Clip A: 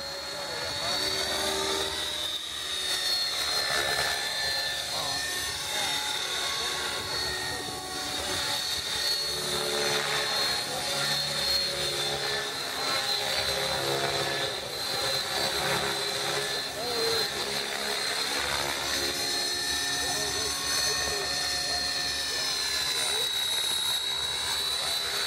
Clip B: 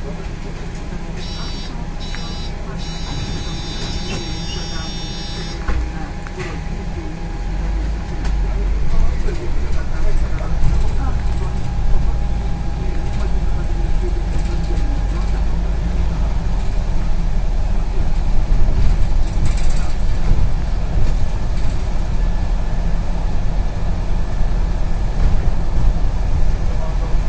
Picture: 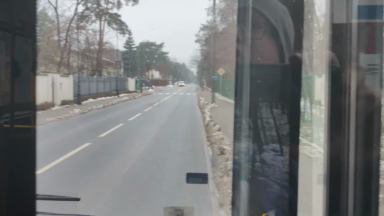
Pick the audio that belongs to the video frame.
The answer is B